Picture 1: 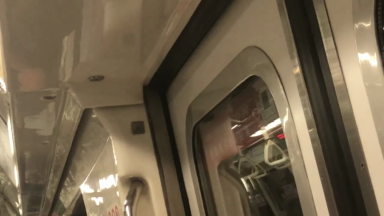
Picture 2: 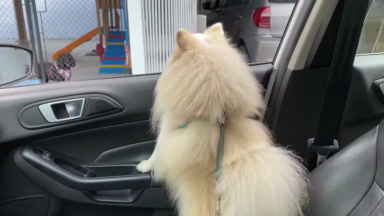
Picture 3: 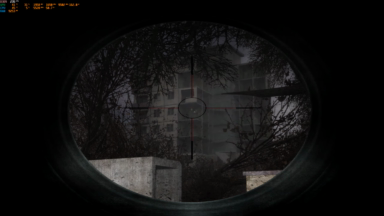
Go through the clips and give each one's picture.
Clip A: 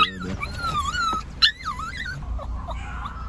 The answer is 2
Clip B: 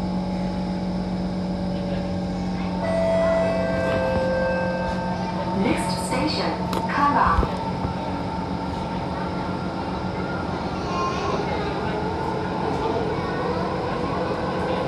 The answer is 1